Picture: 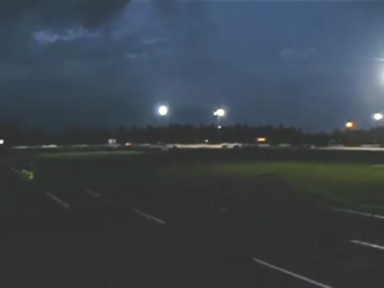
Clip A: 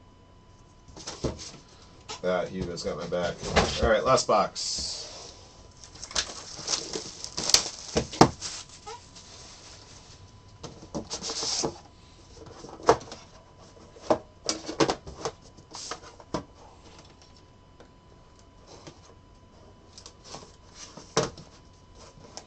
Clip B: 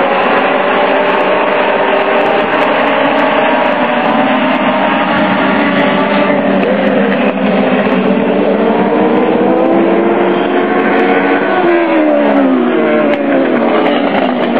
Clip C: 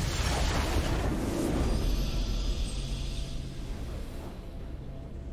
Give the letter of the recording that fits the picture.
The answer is B